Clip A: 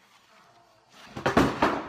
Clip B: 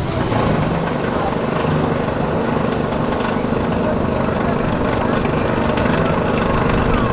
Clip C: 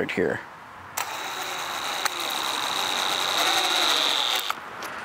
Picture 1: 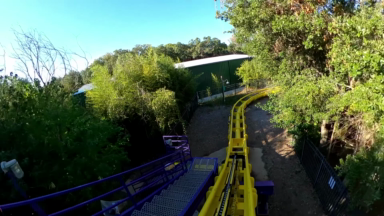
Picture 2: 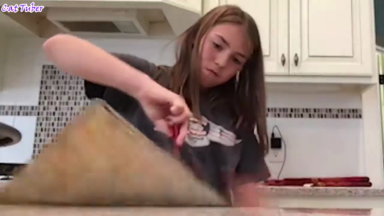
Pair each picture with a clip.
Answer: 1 B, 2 A